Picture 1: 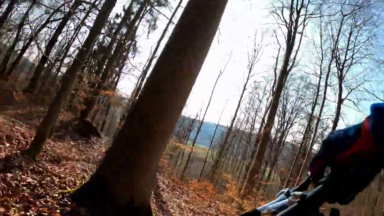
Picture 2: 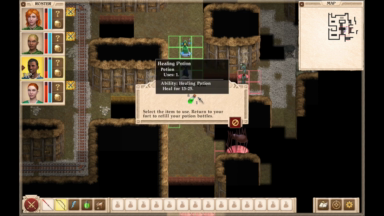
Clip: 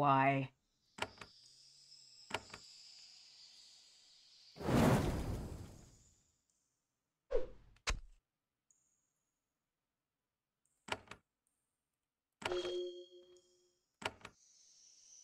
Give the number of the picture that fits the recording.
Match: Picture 2